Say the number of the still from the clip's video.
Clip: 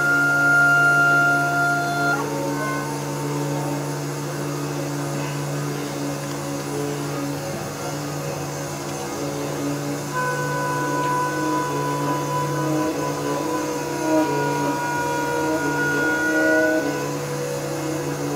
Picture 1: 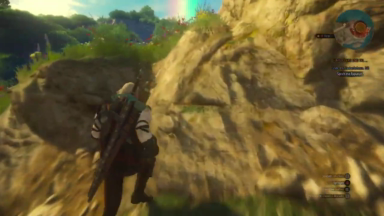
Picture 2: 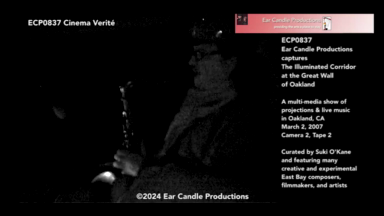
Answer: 2